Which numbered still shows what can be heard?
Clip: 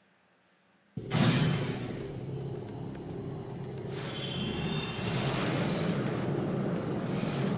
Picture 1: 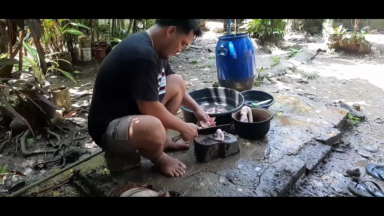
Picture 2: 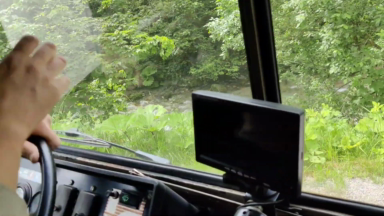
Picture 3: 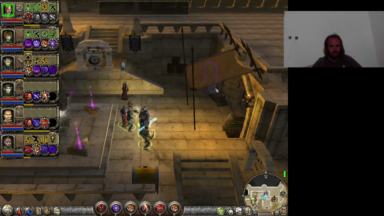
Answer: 3